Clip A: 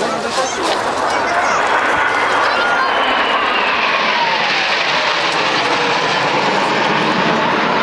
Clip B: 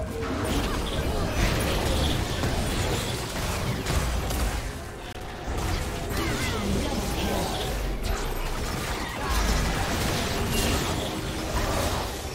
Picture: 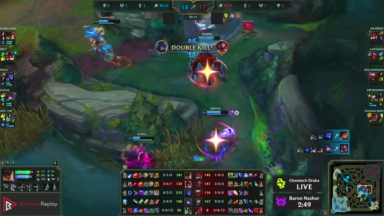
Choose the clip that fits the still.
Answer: B